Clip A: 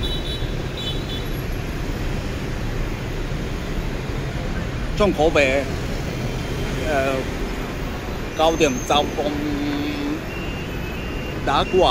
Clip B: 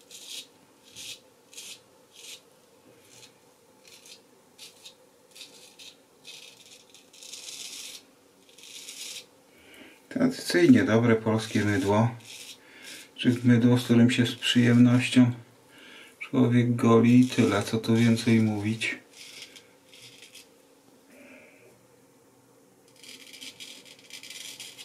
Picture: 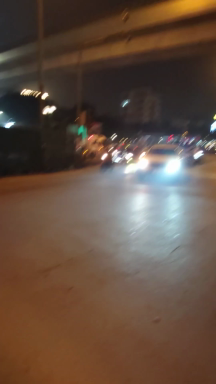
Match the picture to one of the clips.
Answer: A